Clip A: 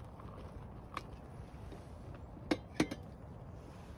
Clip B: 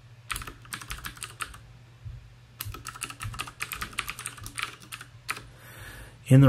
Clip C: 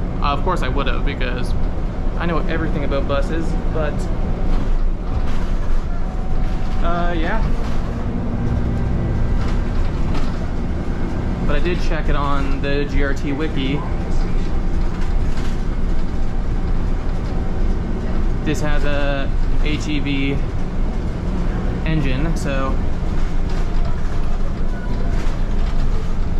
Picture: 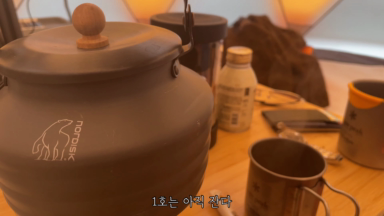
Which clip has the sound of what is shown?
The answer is A